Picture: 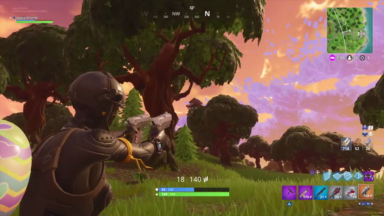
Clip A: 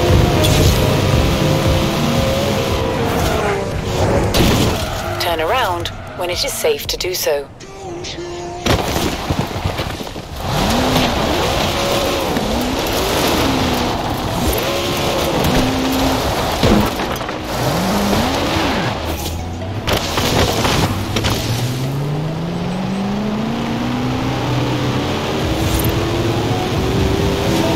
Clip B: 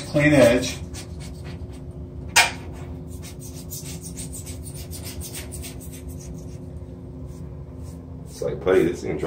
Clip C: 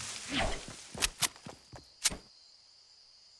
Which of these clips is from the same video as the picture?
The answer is C